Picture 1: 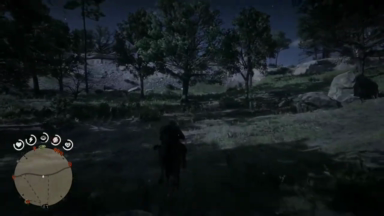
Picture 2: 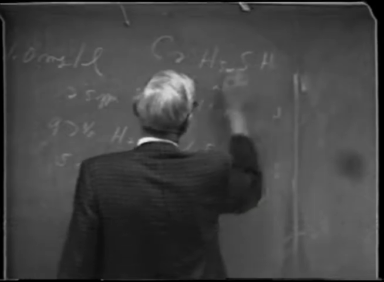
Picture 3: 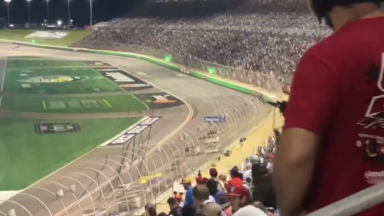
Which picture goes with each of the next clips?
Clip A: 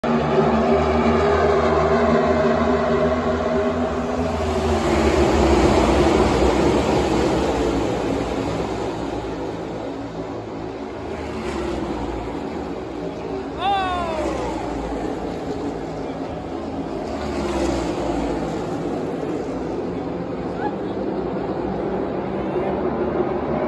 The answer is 3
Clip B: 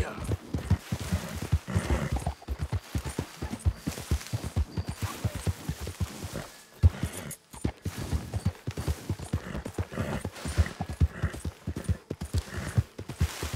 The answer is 1